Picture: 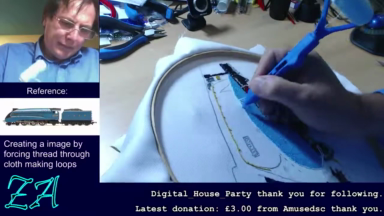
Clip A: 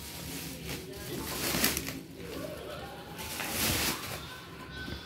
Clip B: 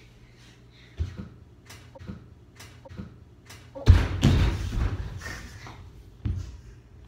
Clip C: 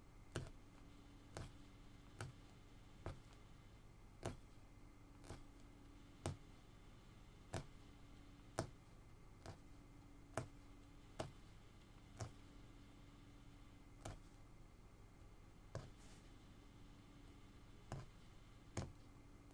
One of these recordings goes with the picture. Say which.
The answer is C